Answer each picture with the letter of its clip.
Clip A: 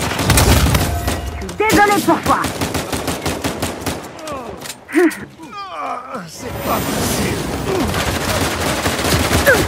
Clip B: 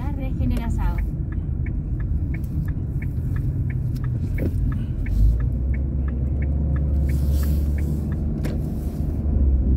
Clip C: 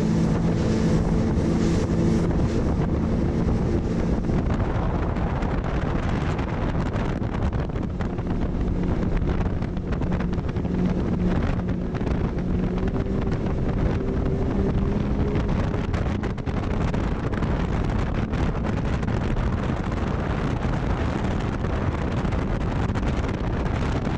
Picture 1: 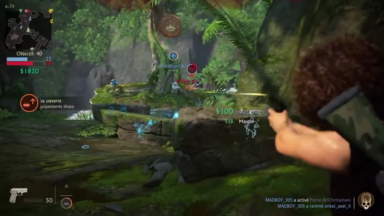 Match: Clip A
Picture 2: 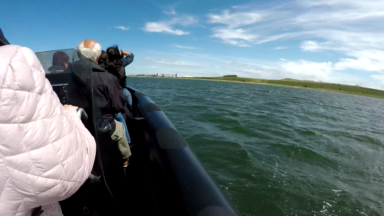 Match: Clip C